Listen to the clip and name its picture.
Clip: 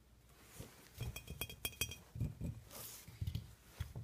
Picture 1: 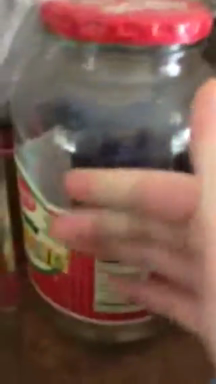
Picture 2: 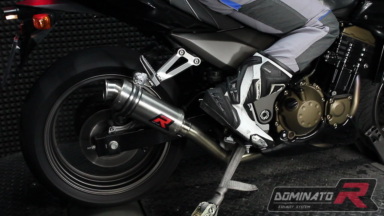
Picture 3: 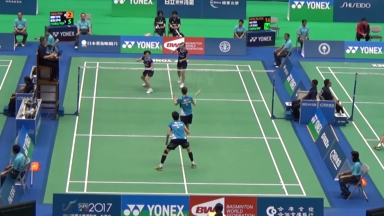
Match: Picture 1